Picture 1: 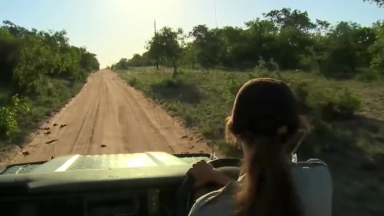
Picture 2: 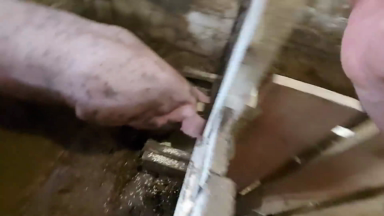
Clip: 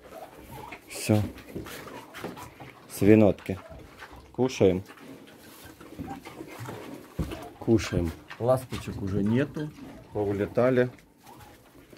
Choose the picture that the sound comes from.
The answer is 2